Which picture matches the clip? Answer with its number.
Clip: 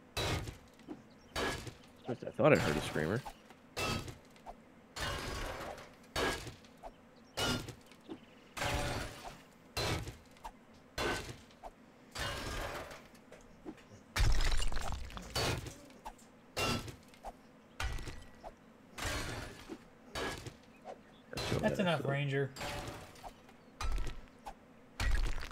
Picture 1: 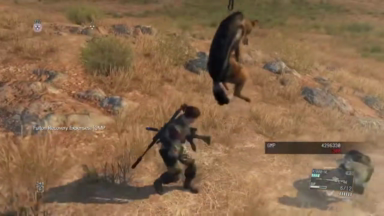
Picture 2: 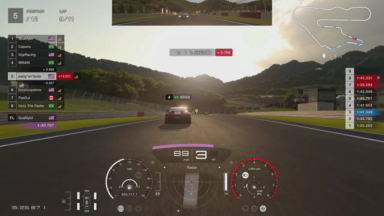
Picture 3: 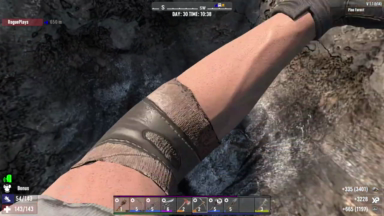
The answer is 3